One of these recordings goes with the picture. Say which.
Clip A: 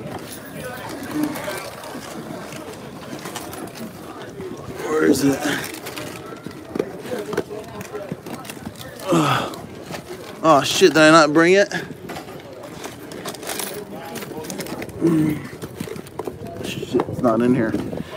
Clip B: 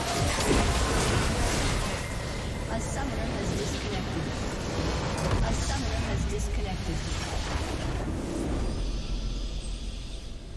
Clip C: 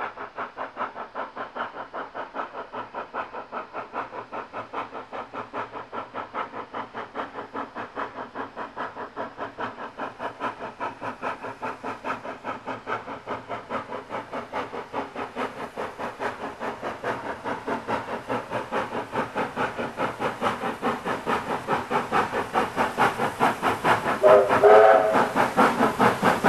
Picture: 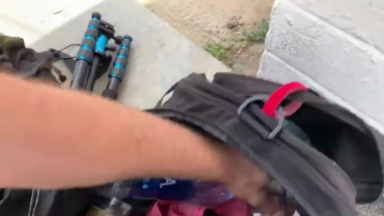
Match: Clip A